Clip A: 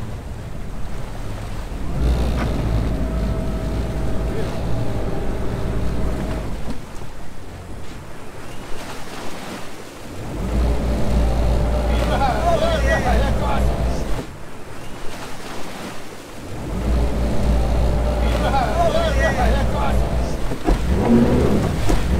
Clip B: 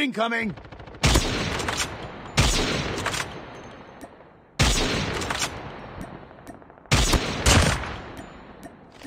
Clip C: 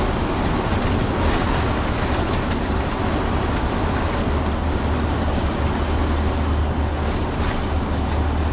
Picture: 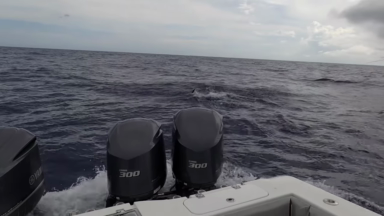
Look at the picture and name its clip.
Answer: A